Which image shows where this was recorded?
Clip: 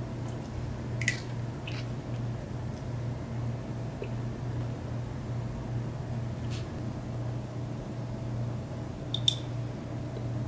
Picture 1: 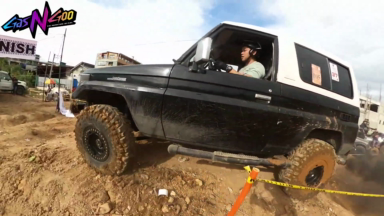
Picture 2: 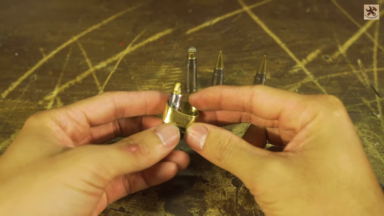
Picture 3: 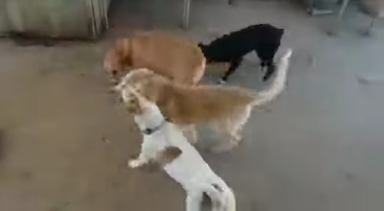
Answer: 2